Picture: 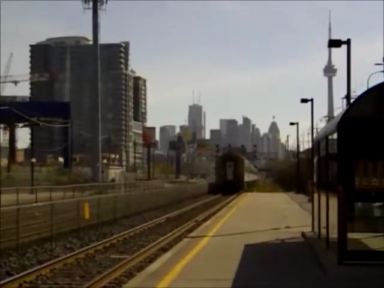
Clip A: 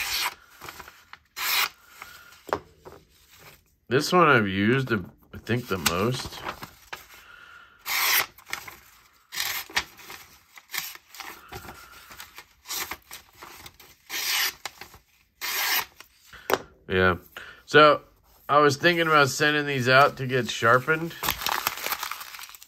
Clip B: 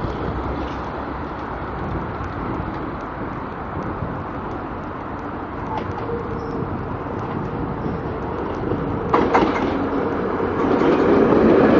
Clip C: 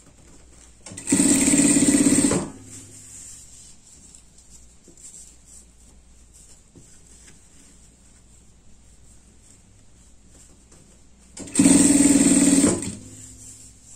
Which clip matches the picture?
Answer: B